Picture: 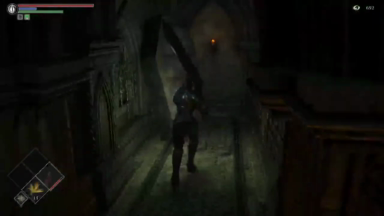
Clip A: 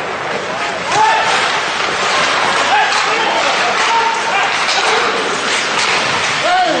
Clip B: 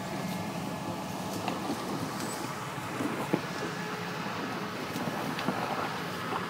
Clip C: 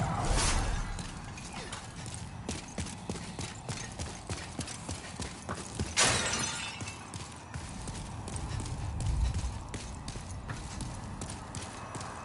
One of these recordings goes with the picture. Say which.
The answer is C